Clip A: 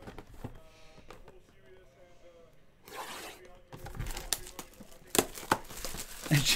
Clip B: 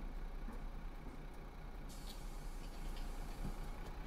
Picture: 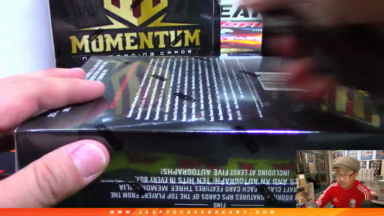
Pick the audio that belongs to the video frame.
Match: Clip A